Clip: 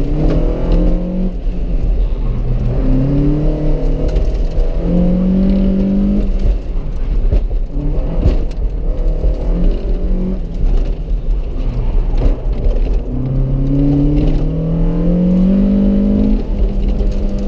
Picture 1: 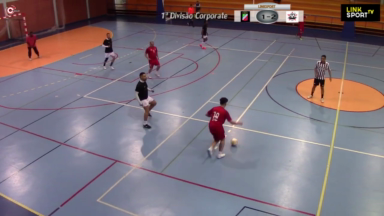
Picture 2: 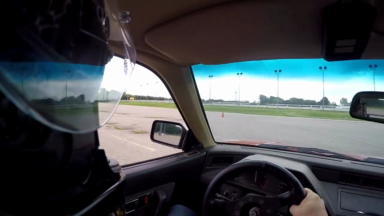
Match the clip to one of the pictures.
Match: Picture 2